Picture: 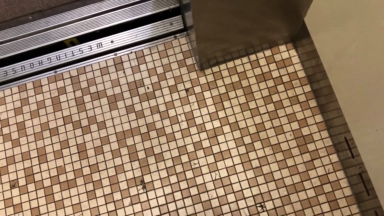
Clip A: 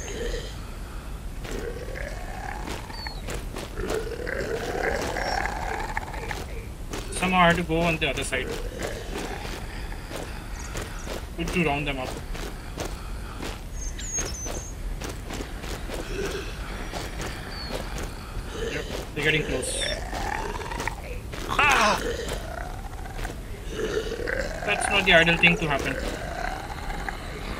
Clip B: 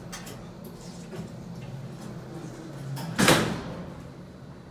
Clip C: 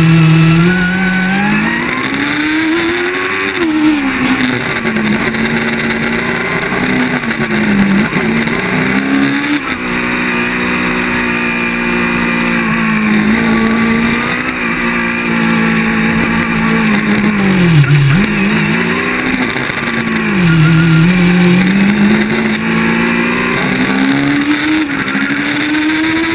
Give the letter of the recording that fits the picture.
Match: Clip B